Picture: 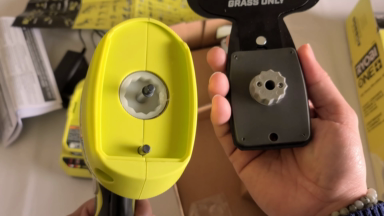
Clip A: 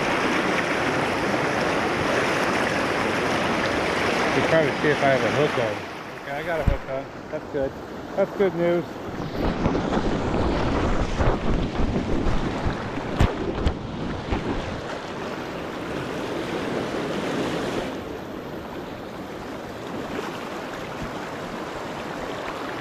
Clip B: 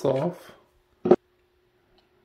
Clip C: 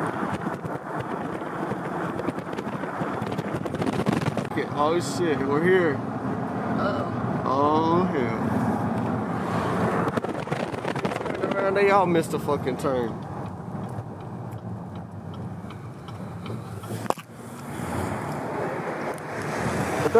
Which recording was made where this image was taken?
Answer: B